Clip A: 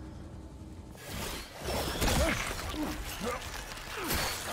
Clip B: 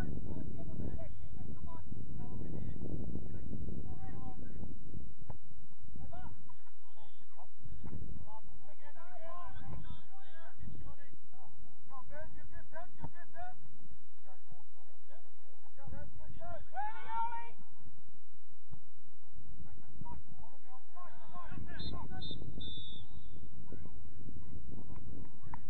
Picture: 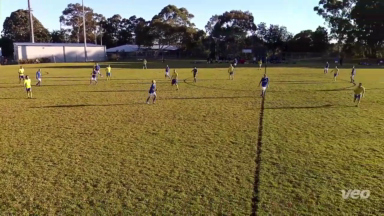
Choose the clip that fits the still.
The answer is B